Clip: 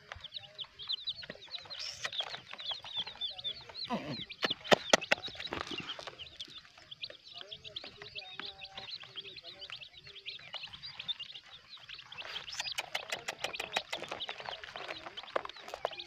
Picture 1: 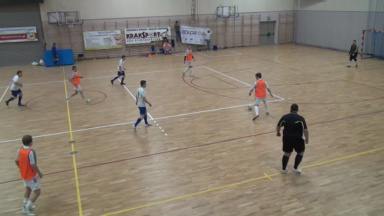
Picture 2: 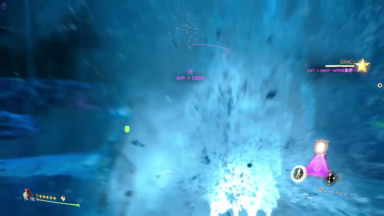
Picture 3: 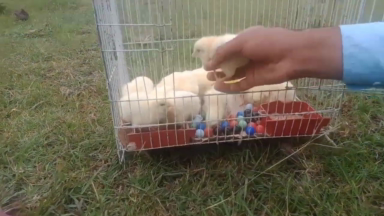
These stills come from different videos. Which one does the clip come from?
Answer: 3